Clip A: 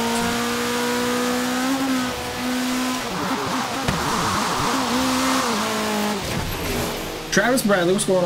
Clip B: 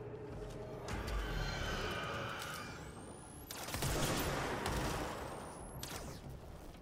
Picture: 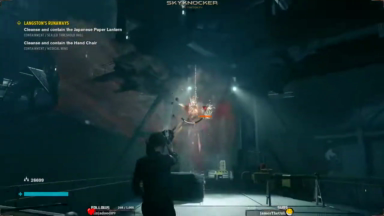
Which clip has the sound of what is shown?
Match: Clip B